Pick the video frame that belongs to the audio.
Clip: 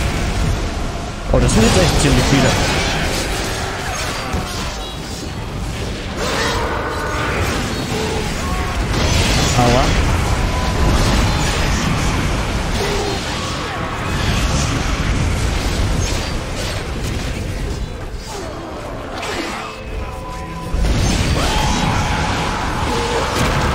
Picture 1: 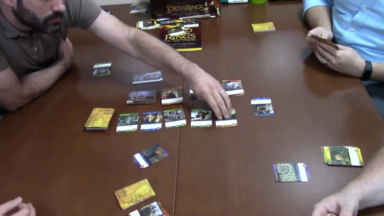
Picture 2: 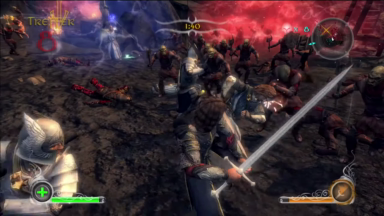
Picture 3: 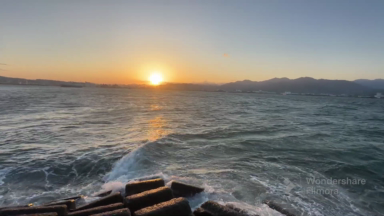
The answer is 2